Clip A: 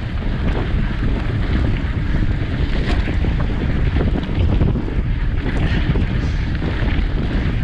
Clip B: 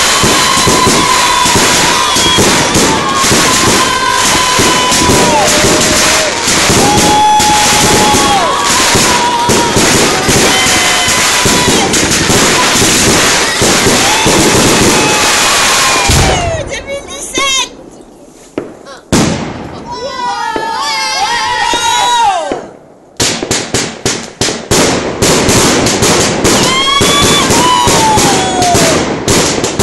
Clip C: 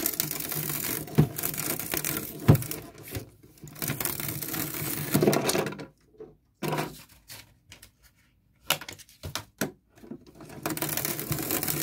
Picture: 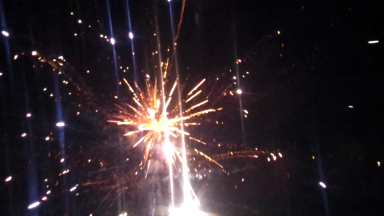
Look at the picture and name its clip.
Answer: B